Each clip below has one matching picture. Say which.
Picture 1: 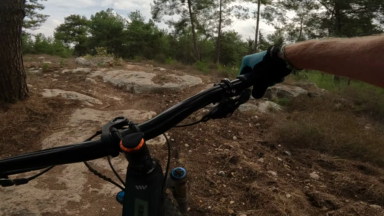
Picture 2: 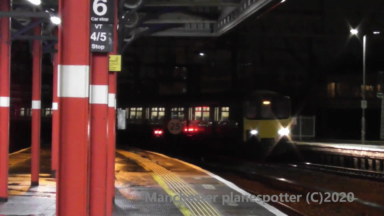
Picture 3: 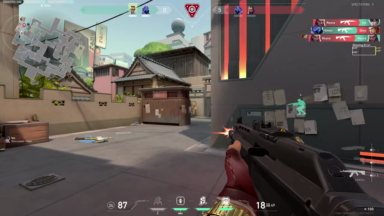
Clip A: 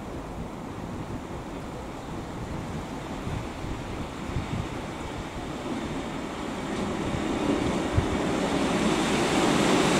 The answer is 2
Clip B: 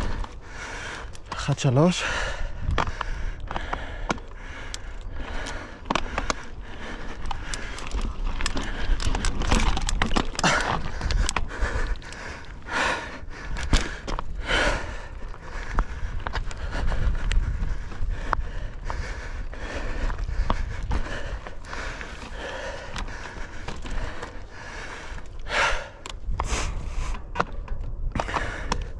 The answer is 1